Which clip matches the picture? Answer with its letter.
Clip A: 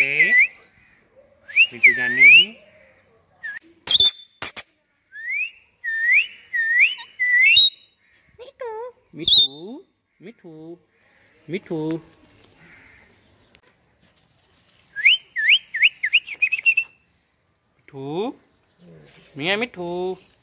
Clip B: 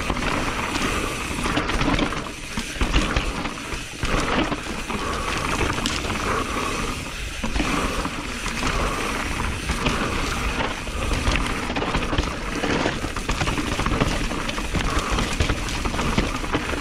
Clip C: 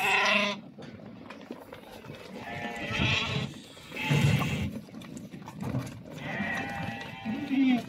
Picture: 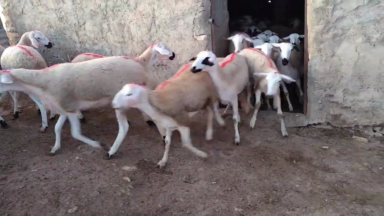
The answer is C